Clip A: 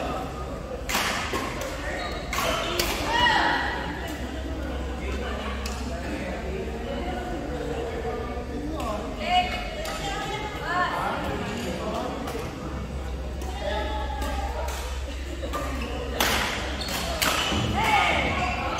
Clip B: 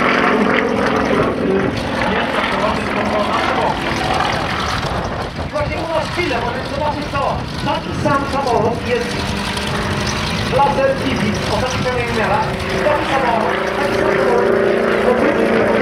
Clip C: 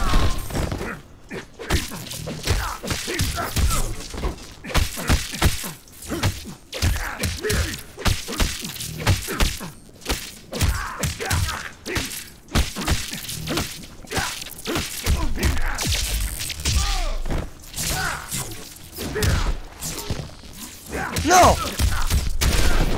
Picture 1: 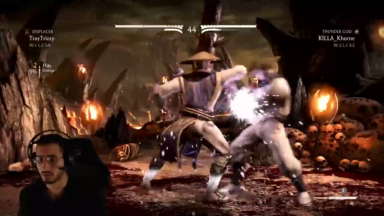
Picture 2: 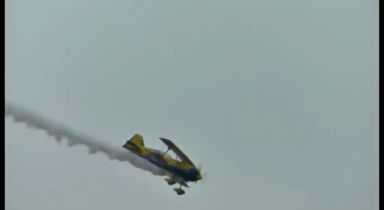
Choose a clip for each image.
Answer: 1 C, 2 B